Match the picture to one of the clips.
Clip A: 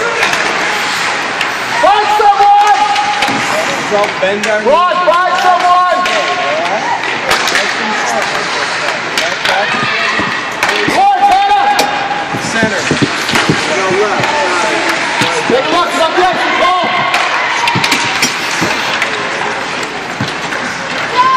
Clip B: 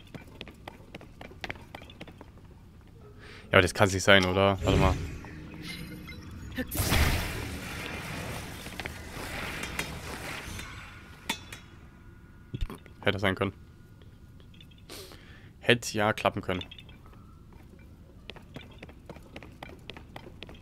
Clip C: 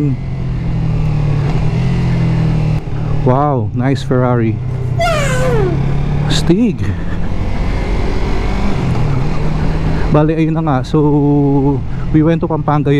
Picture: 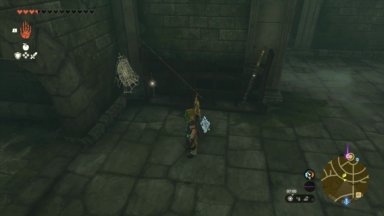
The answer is B